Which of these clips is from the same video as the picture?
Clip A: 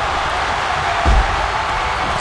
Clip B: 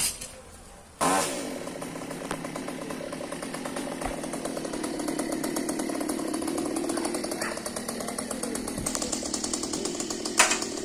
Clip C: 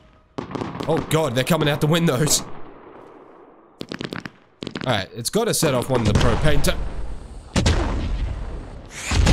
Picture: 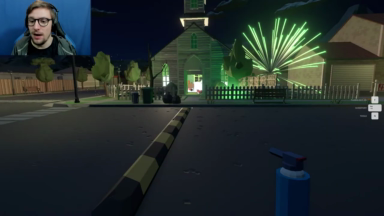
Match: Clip C